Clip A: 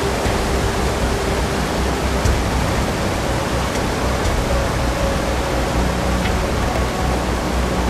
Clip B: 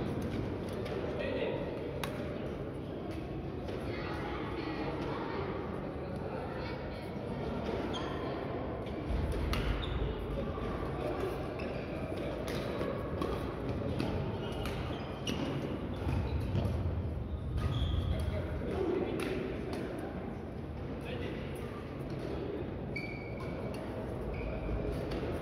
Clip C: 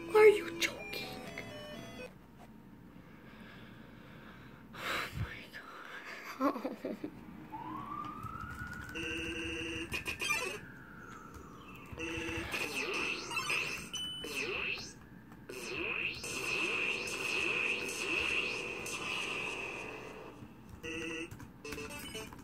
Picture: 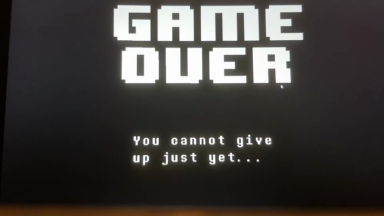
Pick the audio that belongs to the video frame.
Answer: C